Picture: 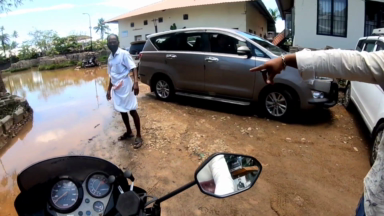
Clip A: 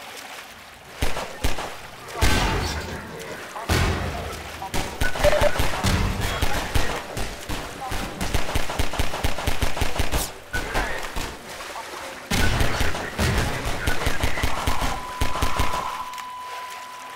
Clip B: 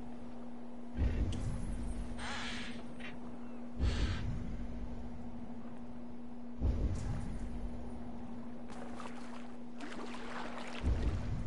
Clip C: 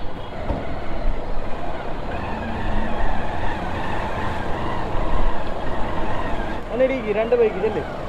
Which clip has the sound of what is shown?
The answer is C